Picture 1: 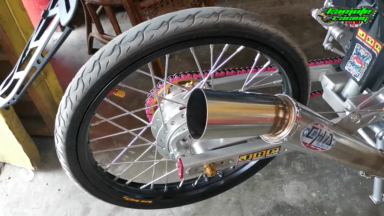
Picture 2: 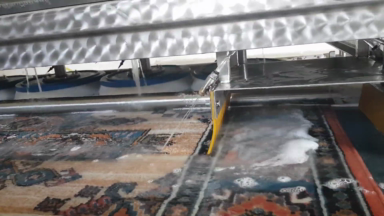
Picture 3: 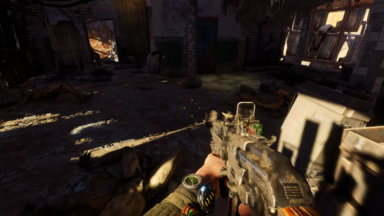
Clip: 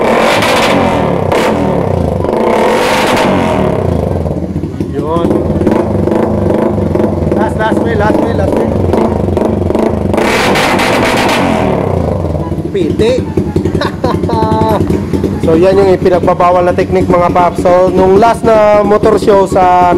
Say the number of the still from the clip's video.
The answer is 1